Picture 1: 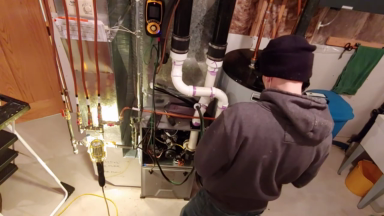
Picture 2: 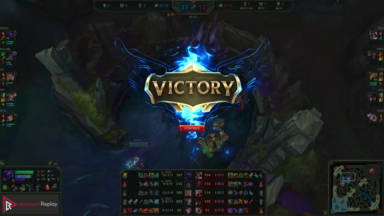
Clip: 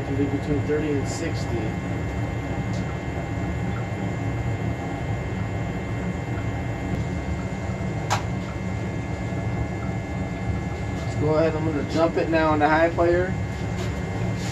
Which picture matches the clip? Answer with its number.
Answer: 1